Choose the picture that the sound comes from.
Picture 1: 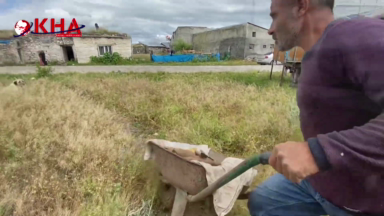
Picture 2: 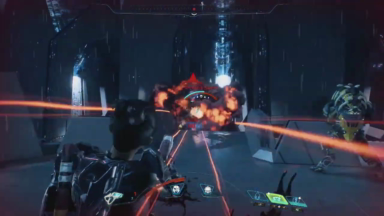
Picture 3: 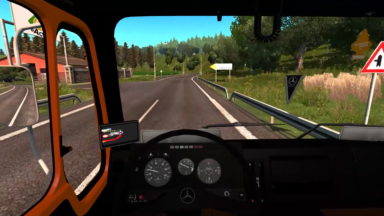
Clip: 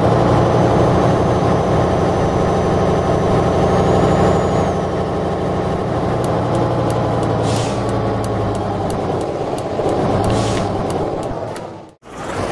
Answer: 3